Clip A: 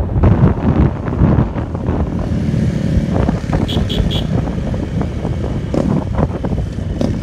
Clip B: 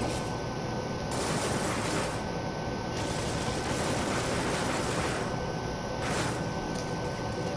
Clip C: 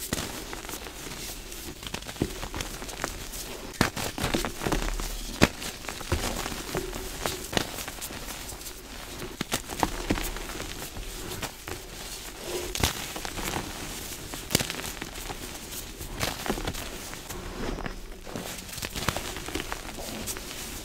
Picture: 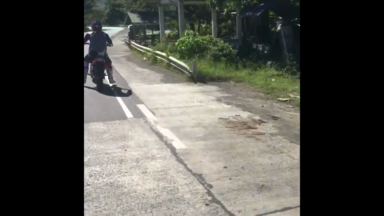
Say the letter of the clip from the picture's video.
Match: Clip A